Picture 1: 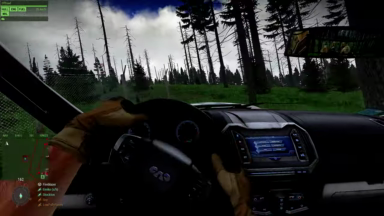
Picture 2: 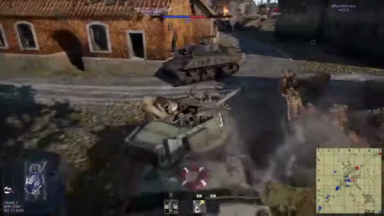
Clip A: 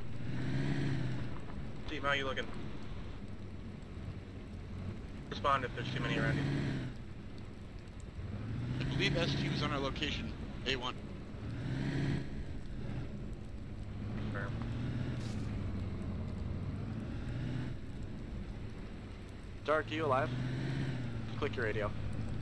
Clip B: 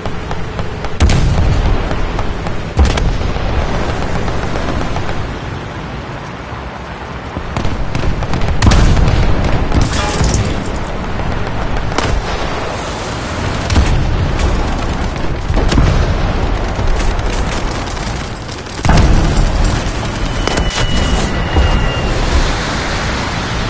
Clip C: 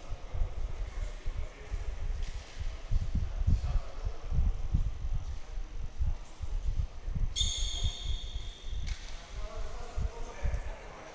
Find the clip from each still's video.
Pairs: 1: A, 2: B